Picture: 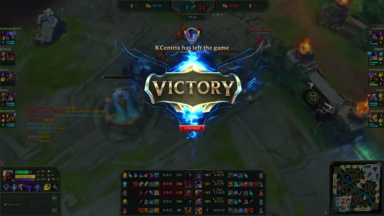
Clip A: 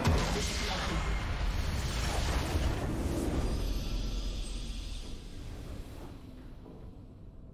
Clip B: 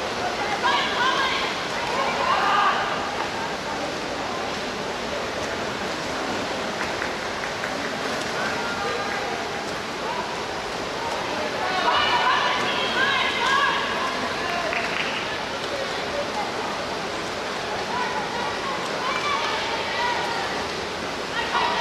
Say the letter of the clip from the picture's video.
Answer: A